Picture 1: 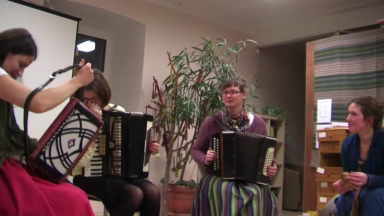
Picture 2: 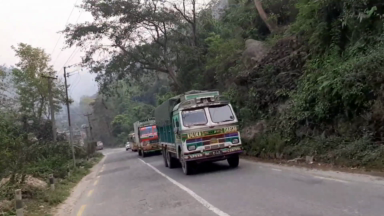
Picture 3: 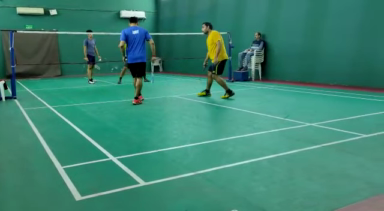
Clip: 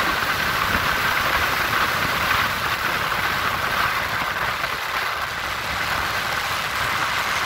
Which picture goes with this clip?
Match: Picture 2